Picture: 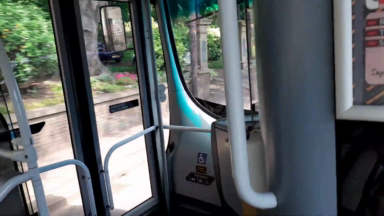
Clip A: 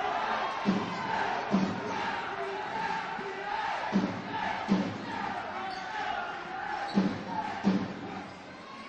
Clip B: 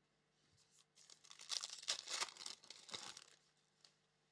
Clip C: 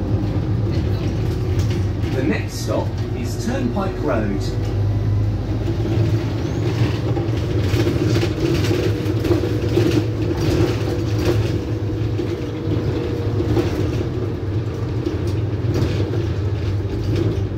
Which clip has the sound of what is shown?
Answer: C